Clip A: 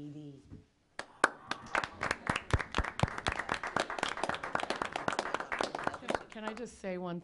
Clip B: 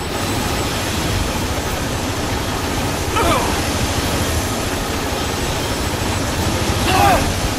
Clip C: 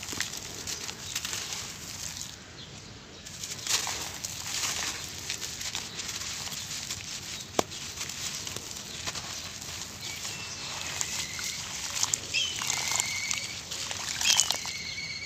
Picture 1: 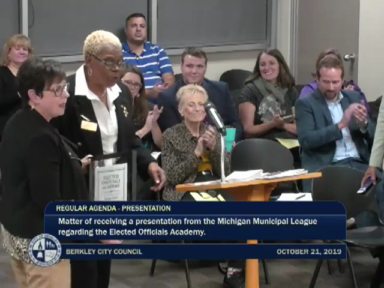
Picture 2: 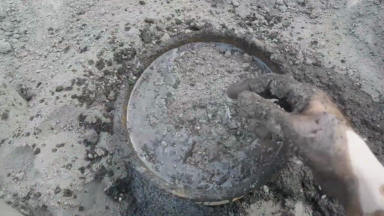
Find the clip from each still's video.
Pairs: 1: A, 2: C